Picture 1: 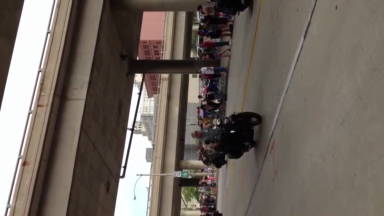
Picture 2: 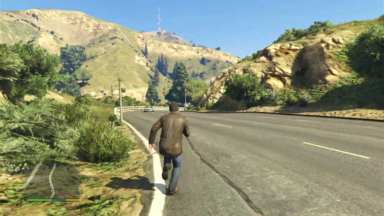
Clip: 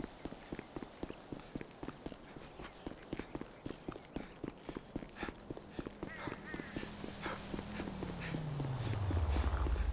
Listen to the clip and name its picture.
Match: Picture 2